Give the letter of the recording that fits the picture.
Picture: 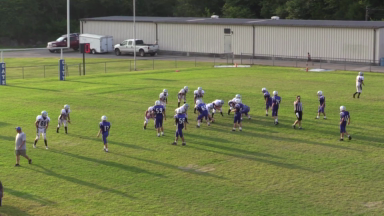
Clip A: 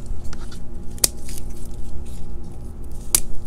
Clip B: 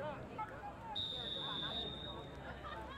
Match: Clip B